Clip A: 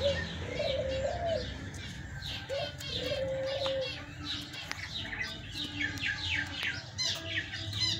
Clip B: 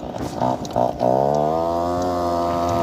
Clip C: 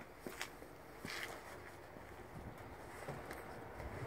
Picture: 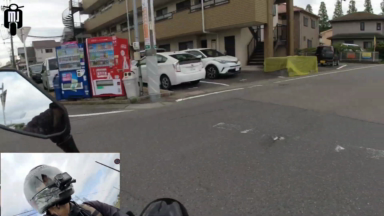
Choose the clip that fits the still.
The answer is B